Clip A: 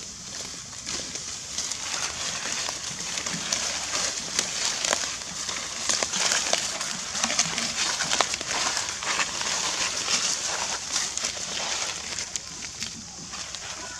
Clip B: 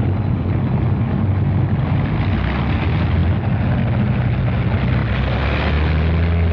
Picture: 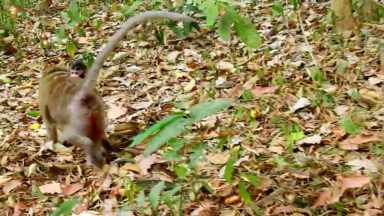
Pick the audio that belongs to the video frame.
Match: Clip A